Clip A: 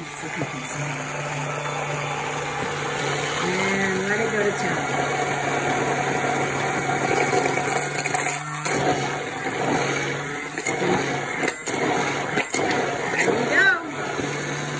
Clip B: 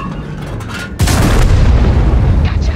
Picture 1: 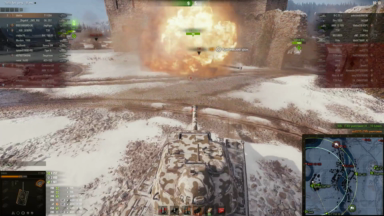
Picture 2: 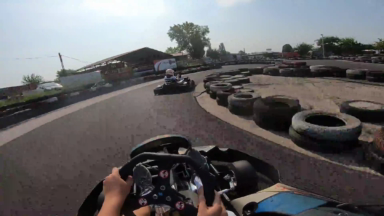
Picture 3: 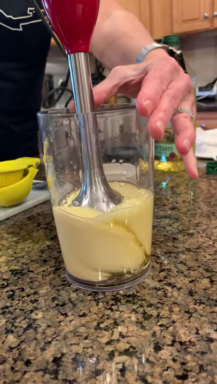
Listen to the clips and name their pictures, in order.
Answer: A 3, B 1